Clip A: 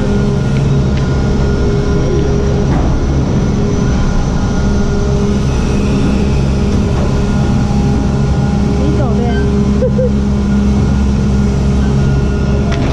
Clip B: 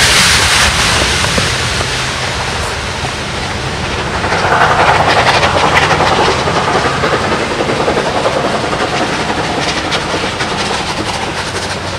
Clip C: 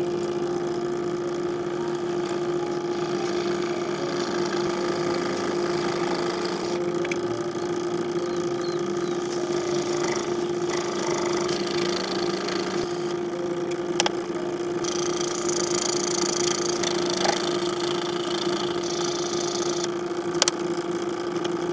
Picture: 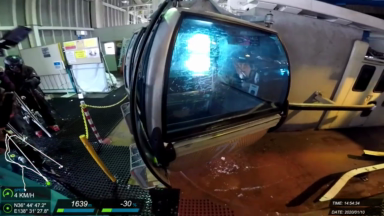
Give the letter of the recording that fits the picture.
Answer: A